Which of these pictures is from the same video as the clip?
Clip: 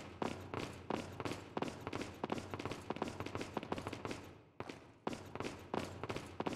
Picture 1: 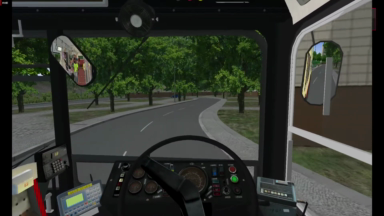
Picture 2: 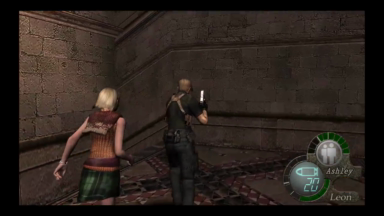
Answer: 2